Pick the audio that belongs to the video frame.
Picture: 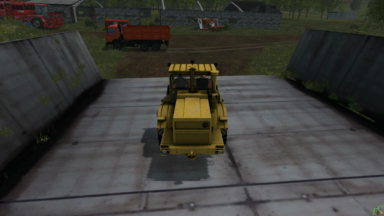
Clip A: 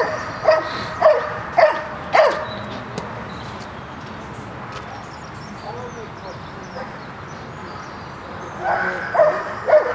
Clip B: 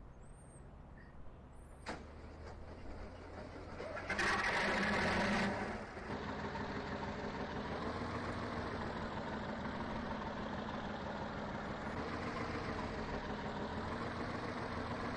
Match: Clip B